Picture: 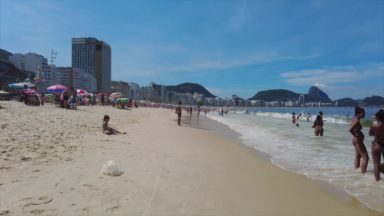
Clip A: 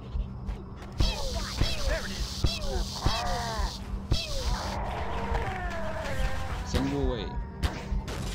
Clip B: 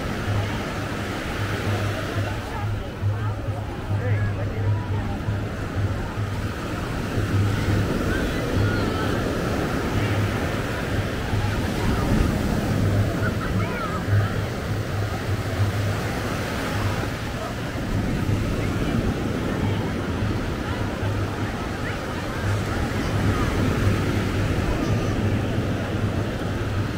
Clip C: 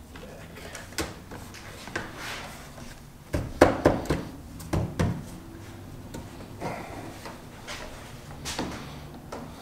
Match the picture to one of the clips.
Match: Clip B